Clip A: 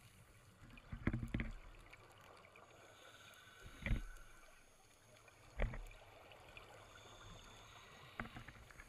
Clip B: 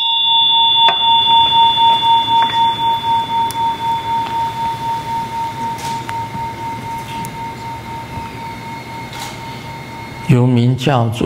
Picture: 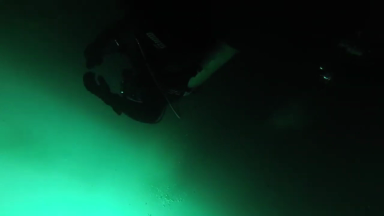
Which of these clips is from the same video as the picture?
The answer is A